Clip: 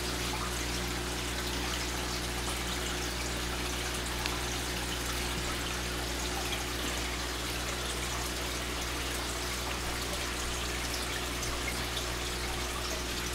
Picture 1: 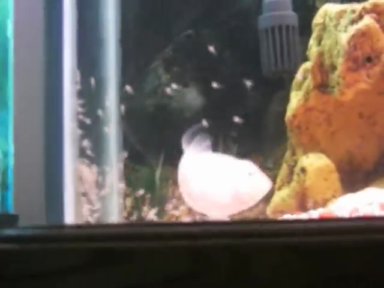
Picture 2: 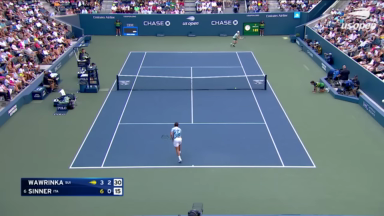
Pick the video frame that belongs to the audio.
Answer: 1